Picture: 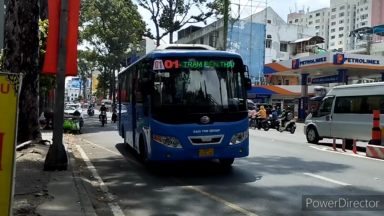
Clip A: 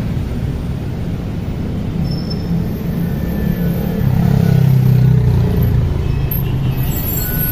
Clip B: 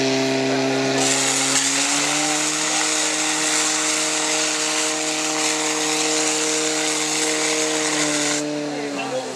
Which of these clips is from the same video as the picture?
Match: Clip A